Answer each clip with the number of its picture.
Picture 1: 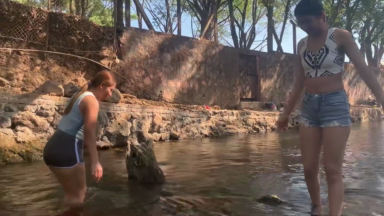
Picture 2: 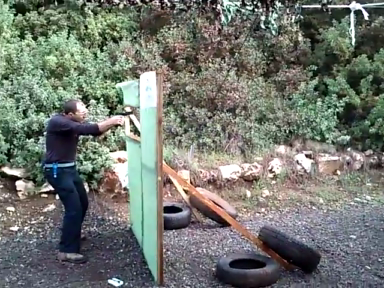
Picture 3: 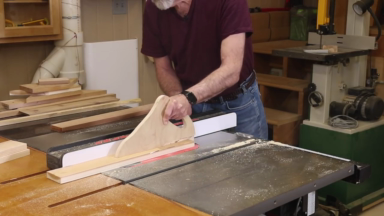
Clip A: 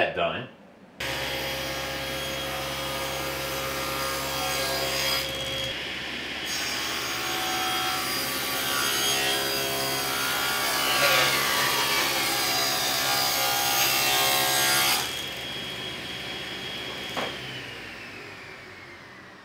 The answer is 3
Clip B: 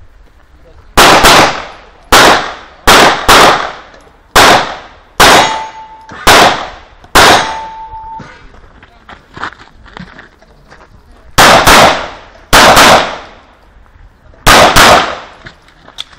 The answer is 2